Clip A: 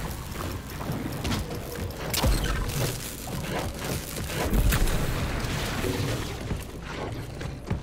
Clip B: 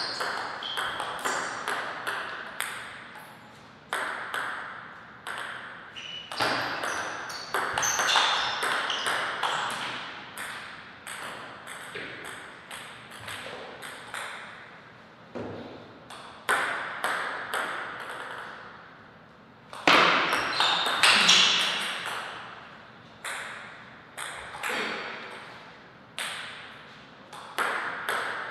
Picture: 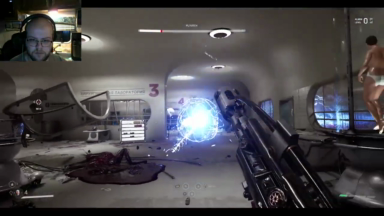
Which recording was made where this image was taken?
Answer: A